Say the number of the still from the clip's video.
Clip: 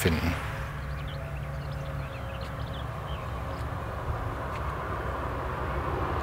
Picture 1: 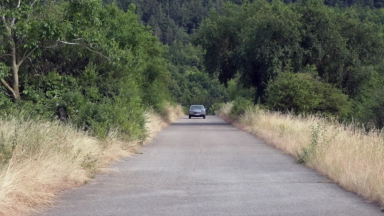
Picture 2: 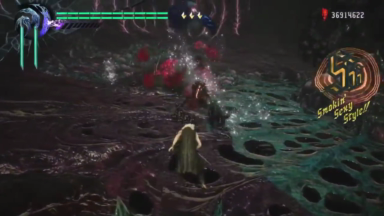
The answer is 1